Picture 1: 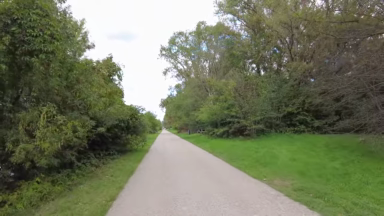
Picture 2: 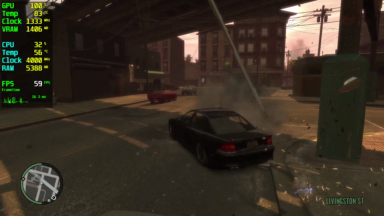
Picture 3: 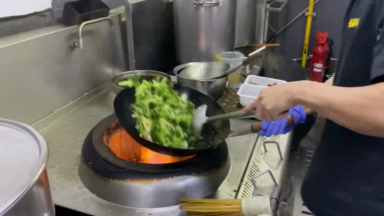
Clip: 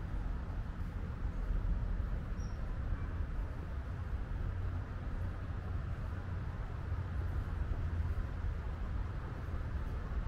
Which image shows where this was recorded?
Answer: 1